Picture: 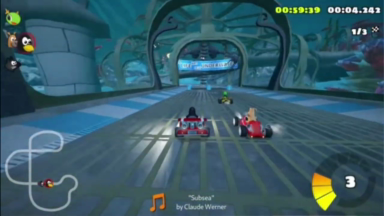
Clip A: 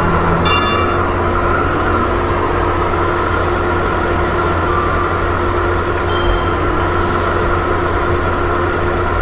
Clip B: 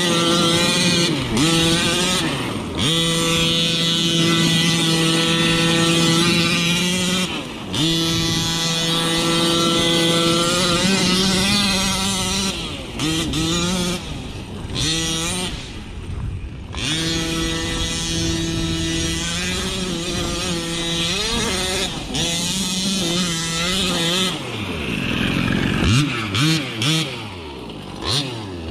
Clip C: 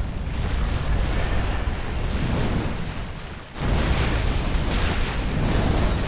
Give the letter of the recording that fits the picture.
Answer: A